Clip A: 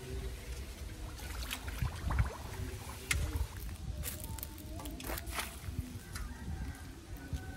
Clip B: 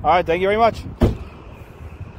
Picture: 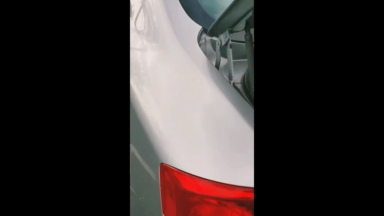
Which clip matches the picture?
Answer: B